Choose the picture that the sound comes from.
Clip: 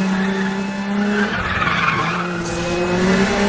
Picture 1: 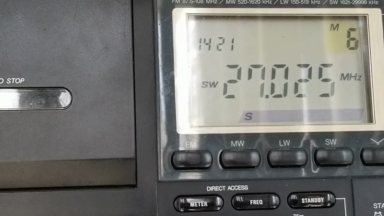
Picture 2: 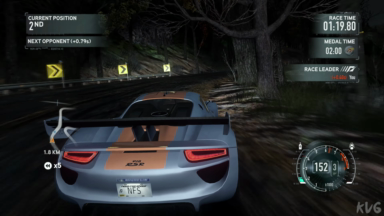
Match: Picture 2